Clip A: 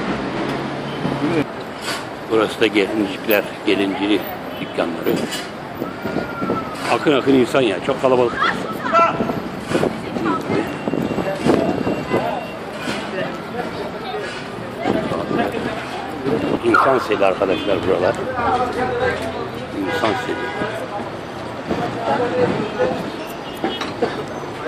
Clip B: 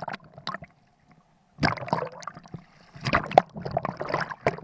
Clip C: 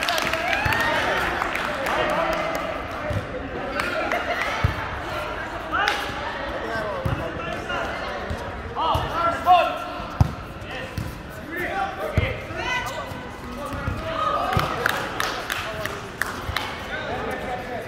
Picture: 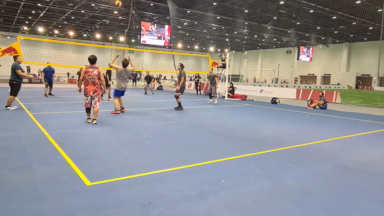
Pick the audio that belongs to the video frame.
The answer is C